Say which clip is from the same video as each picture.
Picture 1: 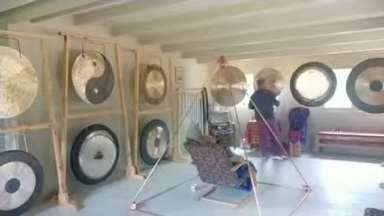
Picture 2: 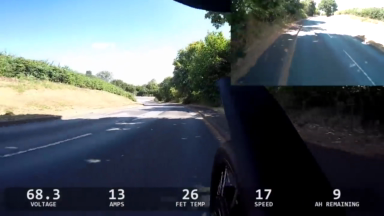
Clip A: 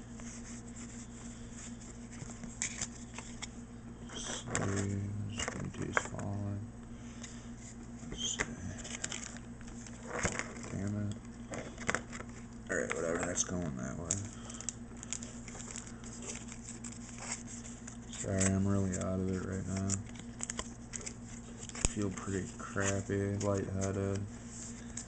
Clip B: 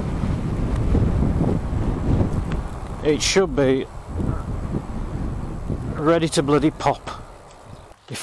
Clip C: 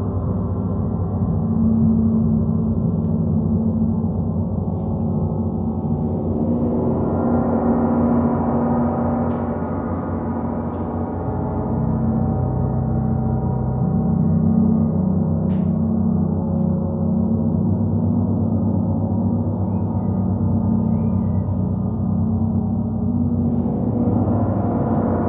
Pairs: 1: C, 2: B